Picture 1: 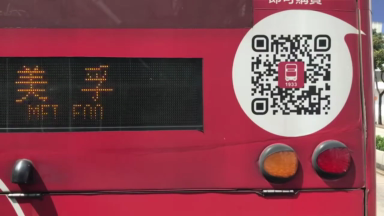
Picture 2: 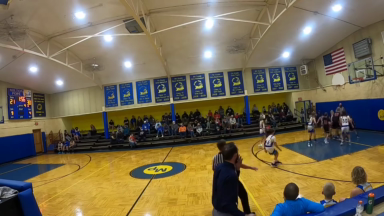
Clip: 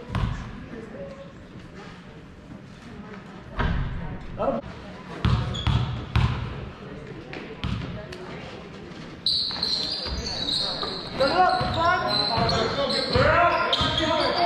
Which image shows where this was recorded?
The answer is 2